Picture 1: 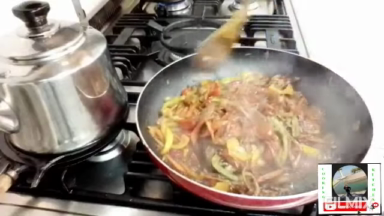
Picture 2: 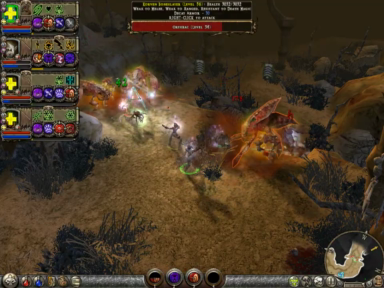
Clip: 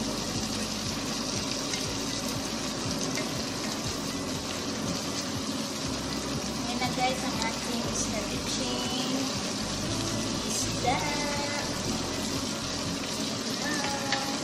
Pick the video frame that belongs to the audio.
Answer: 1